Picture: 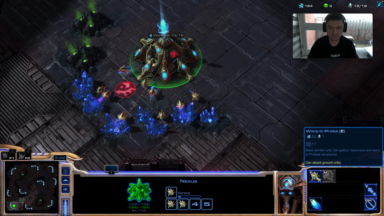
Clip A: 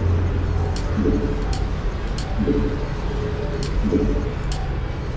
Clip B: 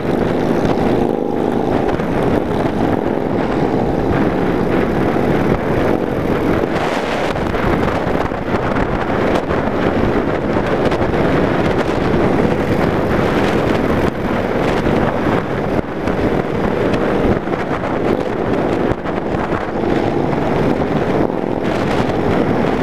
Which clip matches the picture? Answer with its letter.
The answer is A